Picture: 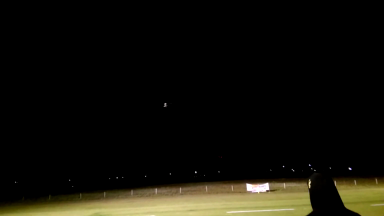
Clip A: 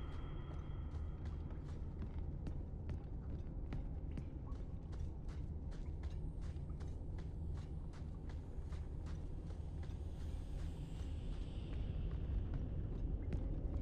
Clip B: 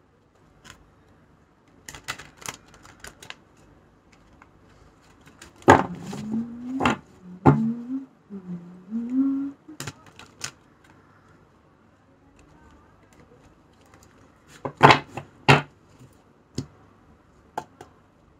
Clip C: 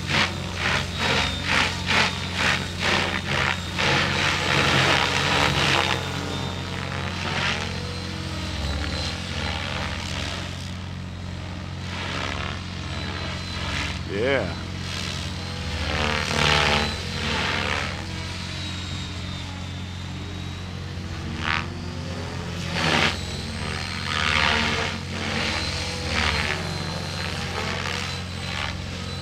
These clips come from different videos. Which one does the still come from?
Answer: C